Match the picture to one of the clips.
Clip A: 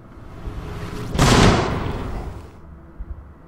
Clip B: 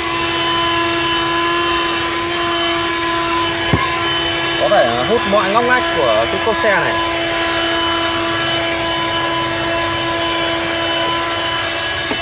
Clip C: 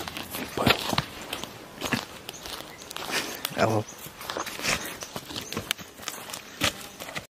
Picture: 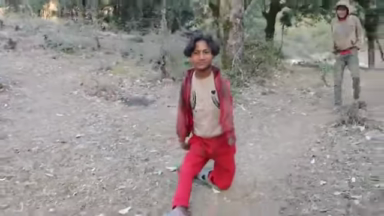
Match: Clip C